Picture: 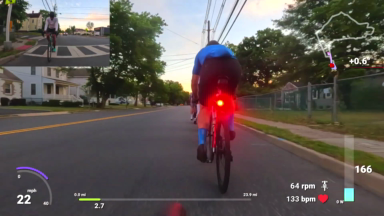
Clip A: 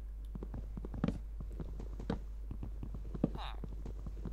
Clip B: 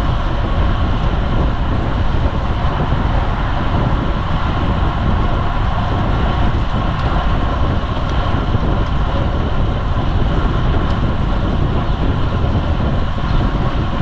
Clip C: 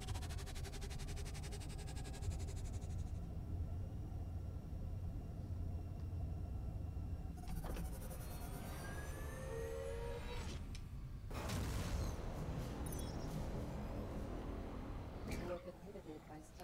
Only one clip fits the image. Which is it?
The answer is B